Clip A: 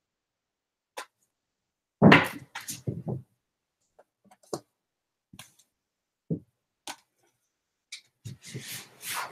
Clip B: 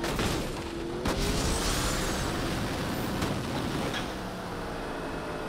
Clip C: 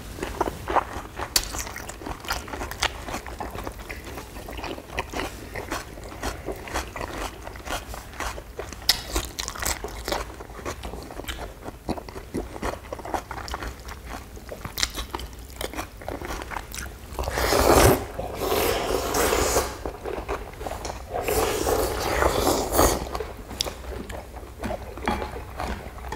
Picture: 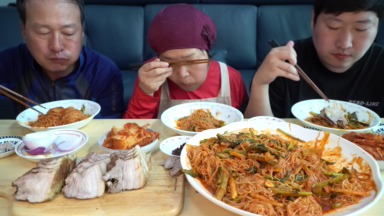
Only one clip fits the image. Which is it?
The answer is C